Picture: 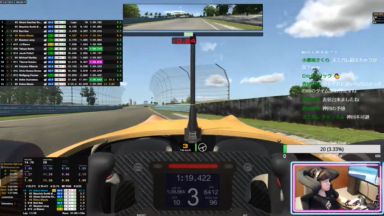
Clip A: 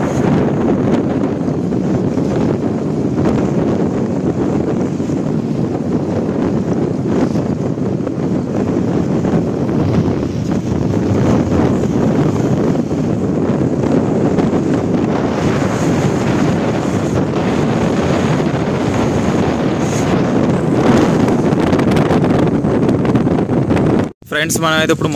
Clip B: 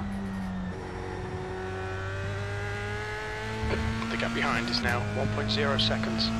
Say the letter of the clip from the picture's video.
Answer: B